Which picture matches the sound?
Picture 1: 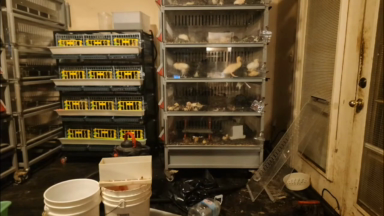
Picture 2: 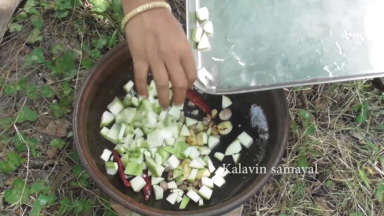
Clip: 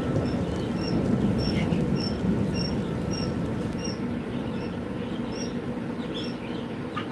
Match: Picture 1